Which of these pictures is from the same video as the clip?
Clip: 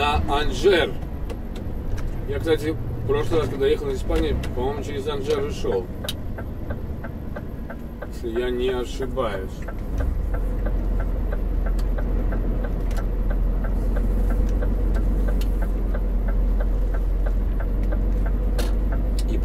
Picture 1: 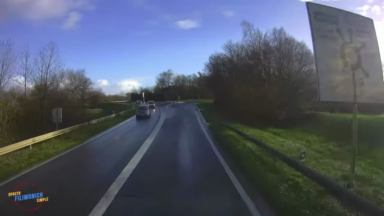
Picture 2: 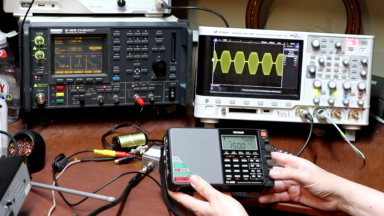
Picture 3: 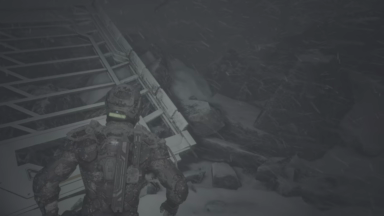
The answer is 1